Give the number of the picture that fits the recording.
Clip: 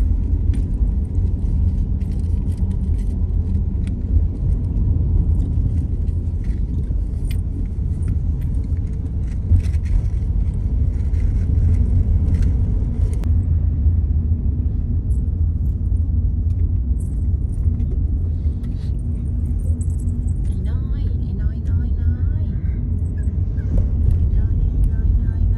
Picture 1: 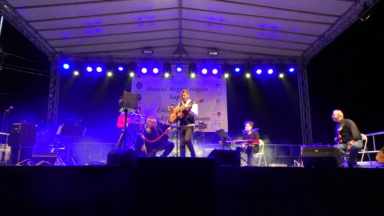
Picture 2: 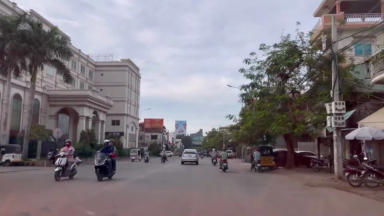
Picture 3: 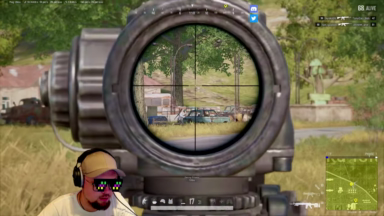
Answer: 2